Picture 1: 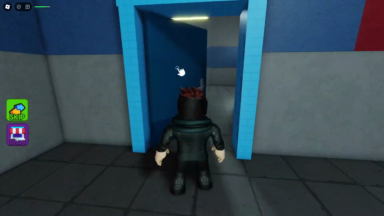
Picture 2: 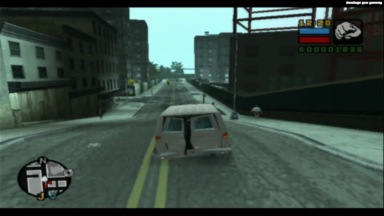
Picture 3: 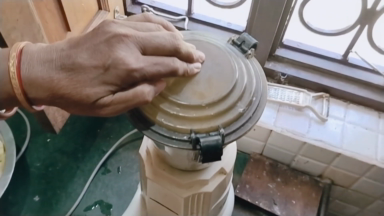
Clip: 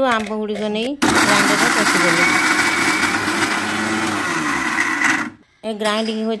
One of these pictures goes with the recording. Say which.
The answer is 3